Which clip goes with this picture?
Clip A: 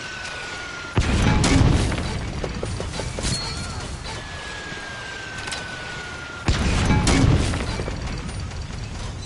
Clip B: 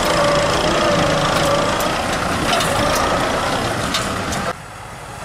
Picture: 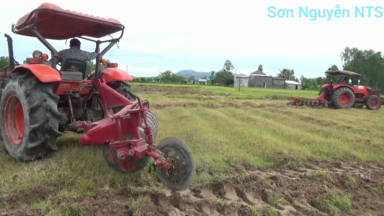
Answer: B